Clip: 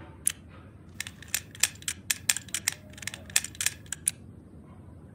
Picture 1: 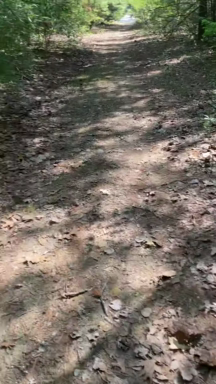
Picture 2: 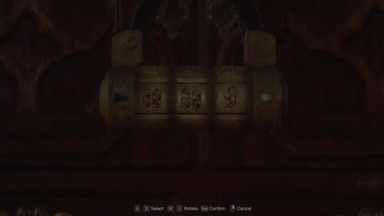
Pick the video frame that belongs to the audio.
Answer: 2